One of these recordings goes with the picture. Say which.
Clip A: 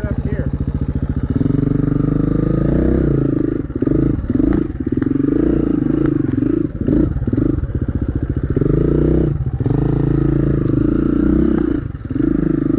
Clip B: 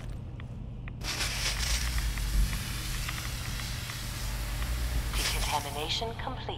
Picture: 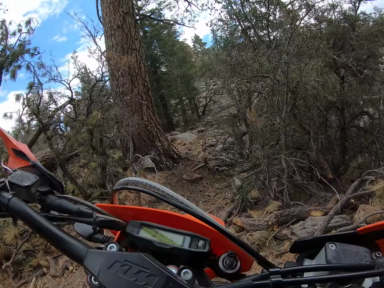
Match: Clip A